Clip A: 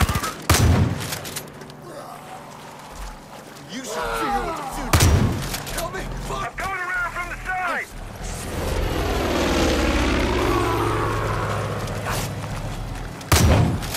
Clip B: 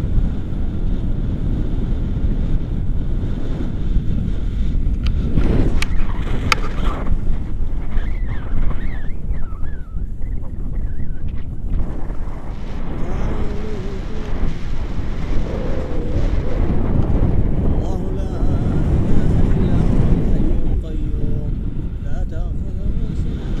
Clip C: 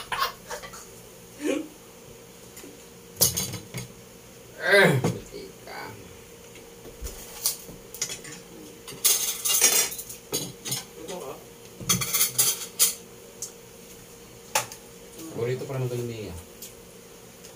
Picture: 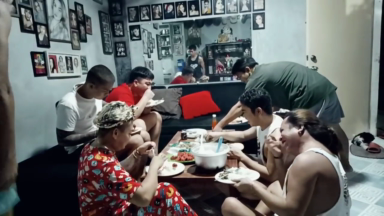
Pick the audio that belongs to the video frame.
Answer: C